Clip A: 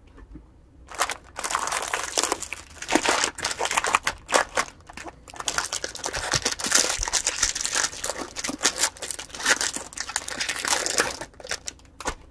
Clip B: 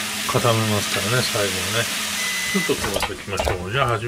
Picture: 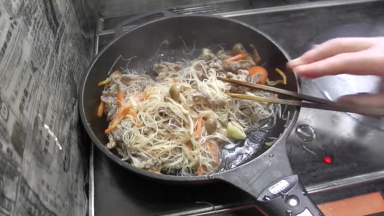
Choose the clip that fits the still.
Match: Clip B